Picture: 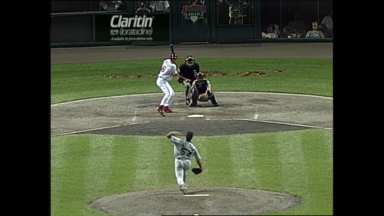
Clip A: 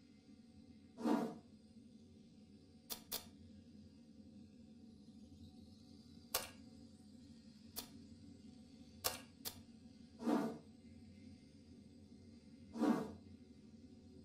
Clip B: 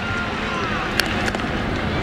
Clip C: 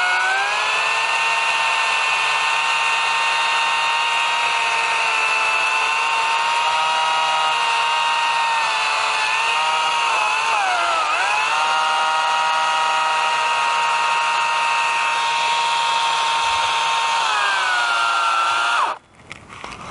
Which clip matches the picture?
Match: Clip B